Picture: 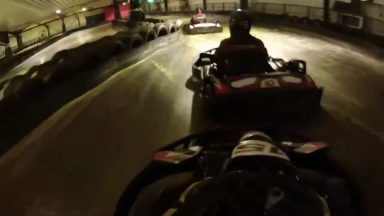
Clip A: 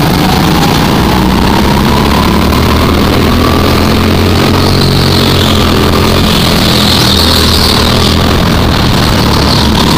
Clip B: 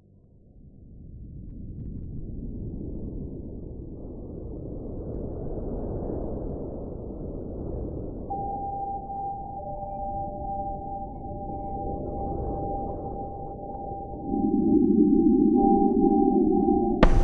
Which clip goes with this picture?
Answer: A